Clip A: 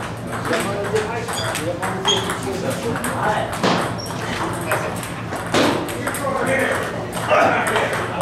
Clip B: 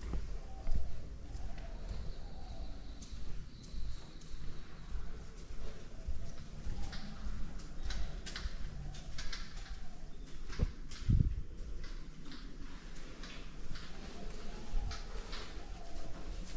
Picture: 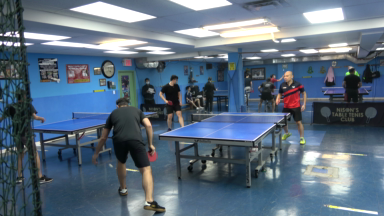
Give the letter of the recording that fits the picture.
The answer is A